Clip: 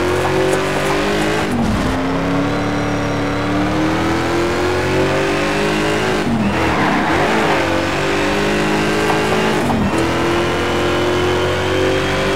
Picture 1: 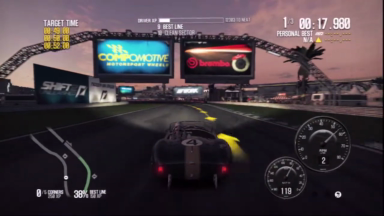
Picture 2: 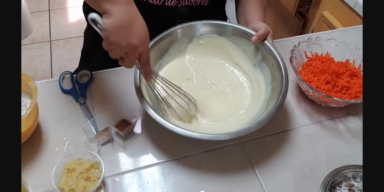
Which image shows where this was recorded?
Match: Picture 1